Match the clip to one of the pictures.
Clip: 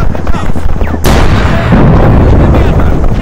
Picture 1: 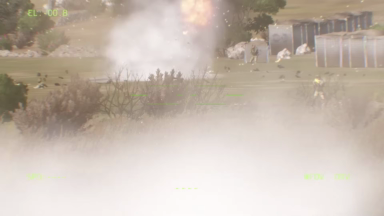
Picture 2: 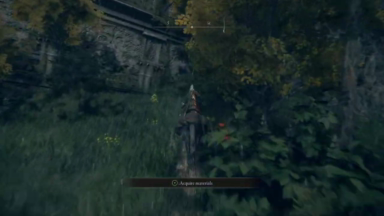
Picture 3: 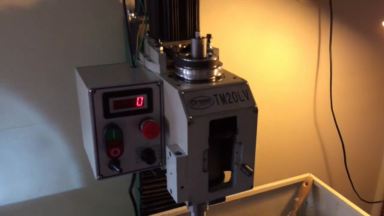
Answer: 1